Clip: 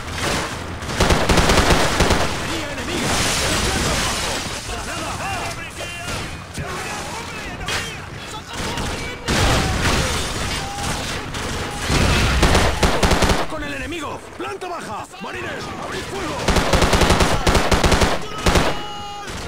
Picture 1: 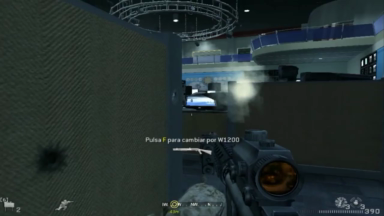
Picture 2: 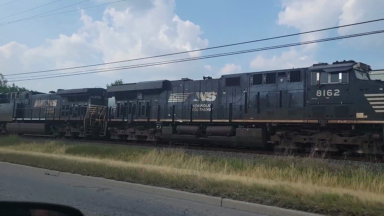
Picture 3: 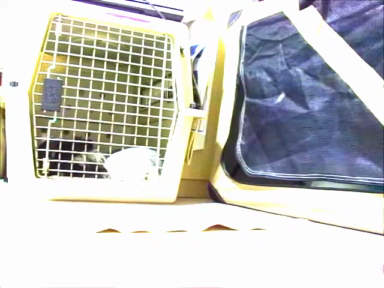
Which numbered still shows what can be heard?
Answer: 1